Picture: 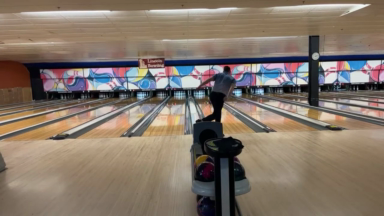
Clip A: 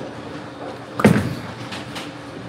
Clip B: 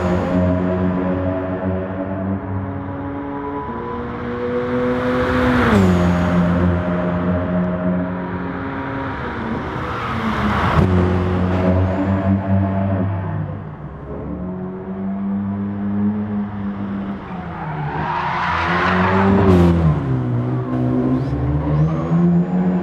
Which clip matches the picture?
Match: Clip A